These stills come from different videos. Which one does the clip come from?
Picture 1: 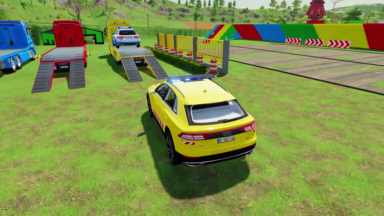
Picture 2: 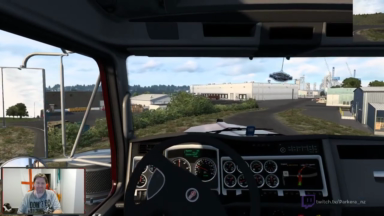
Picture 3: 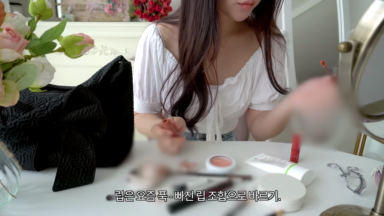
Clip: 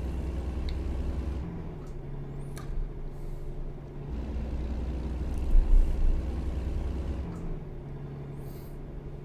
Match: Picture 2